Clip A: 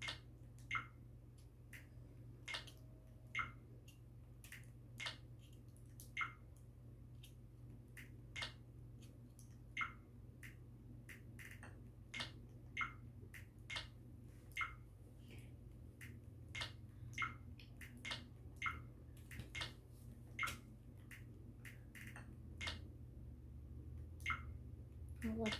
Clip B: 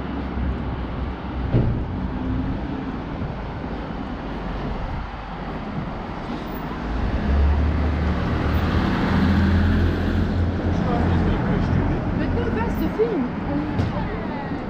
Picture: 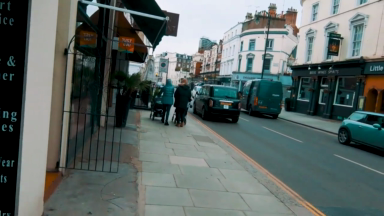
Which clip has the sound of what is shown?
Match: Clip B